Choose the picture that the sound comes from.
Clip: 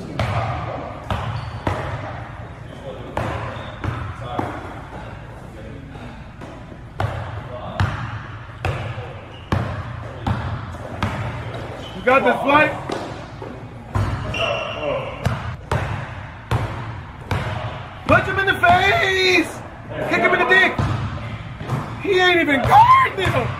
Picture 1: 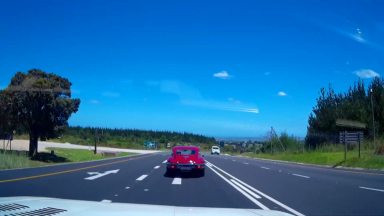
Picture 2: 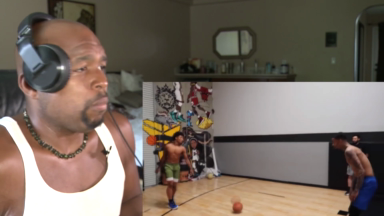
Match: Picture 2